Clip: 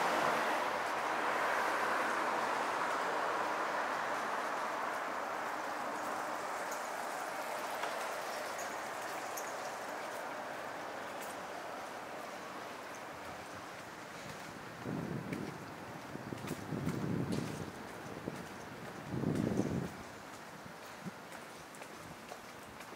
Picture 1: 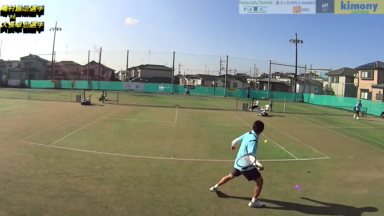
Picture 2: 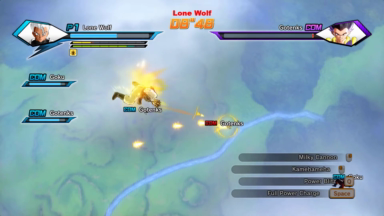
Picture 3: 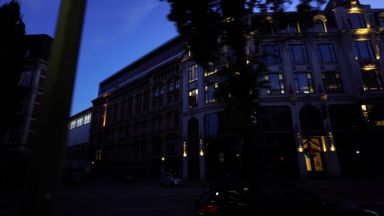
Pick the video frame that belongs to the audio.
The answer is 3